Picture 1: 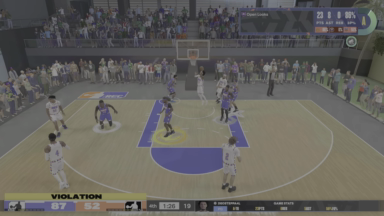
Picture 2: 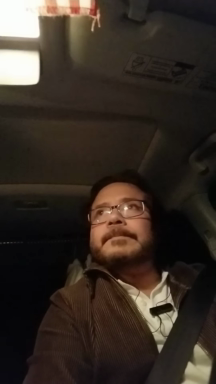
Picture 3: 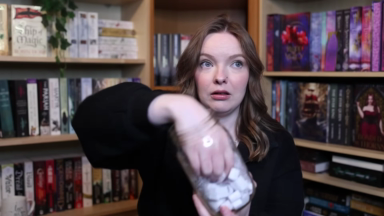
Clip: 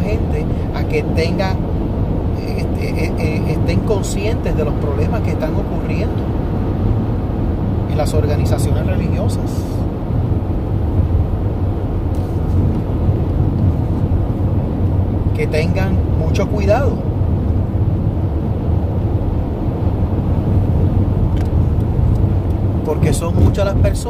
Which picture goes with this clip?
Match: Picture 2